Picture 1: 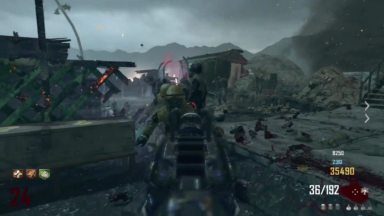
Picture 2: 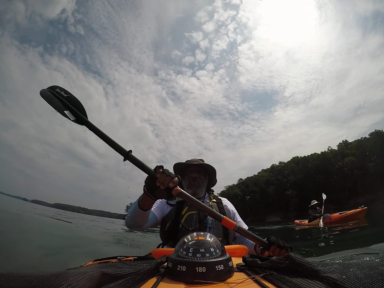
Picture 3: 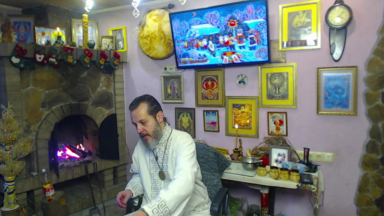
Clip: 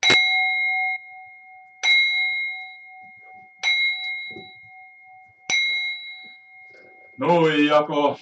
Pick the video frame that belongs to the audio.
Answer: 3